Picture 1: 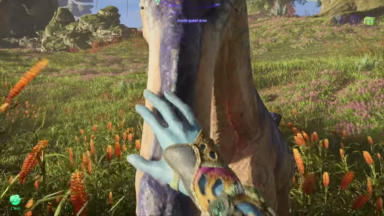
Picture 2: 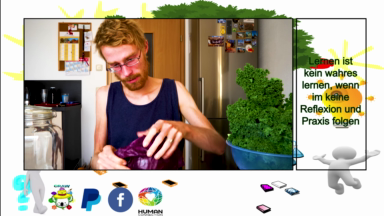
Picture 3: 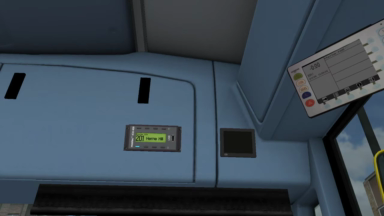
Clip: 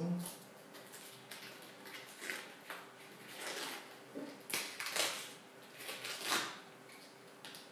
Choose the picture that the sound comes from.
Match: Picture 2